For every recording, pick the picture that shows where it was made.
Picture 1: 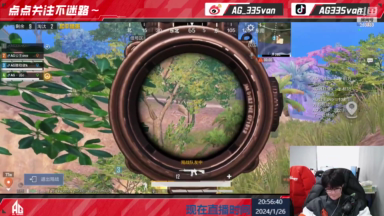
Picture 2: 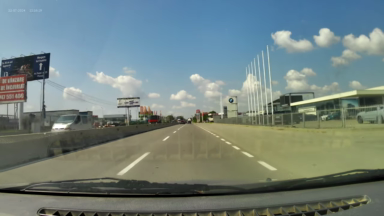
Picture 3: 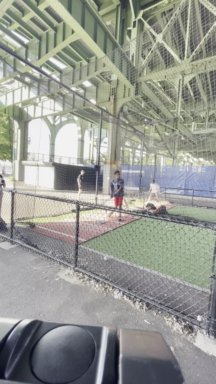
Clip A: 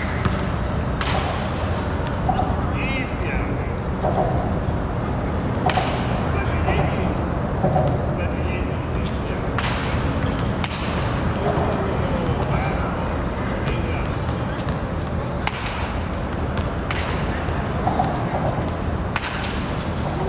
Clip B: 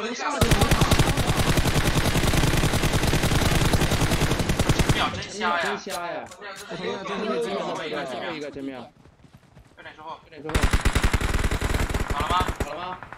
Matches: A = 3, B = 1